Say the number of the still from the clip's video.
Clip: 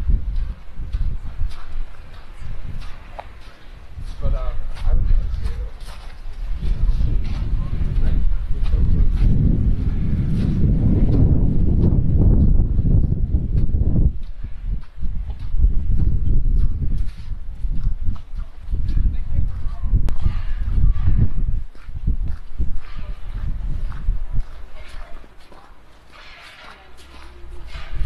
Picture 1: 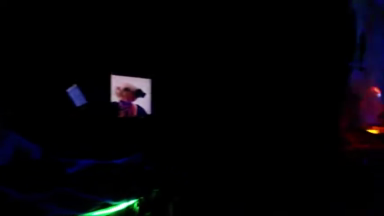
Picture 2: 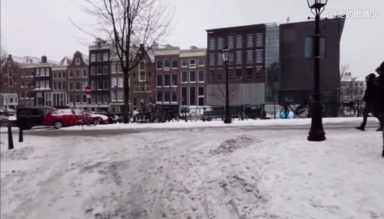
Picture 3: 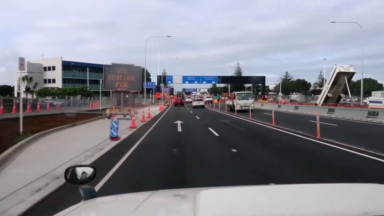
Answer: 2